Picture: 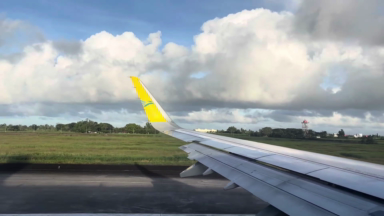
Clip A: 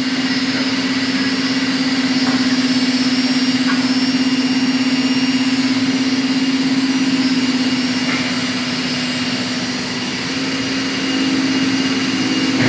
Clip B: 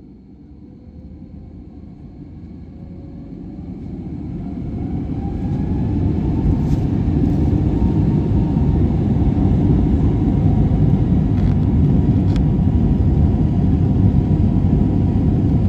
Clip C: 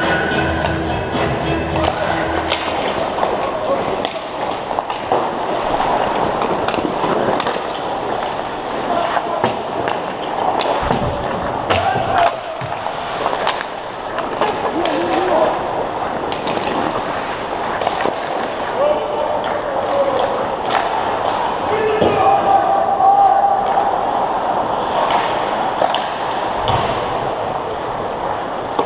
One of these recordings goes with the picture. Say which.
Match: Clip B